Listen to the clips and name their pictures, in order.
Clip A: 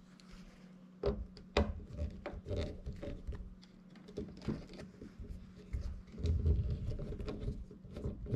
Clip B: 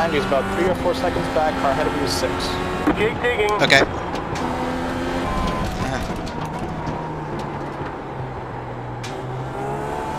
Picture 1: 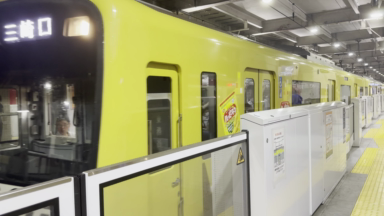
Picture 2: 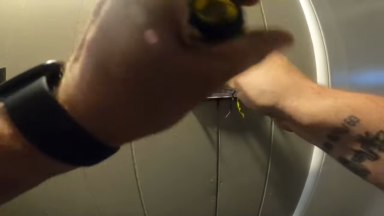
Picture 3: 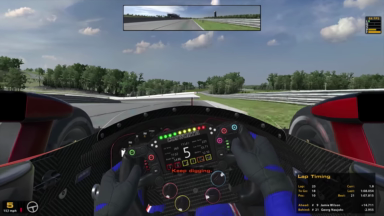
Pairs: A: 2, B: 3